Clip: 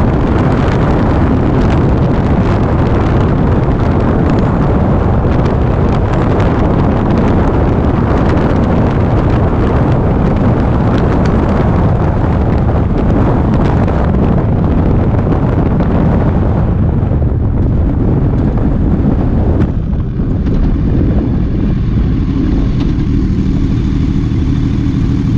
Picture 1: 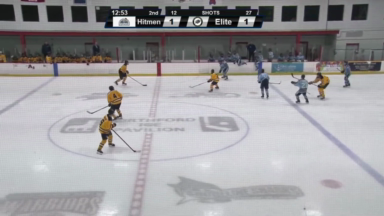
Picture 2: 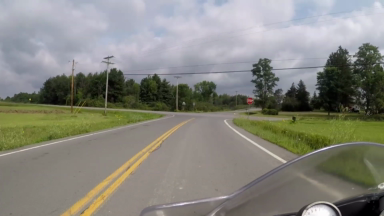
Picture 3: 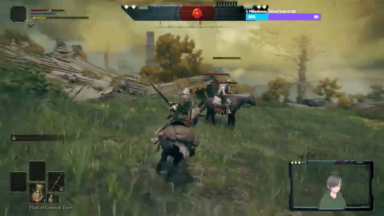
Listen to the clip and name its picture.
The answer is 2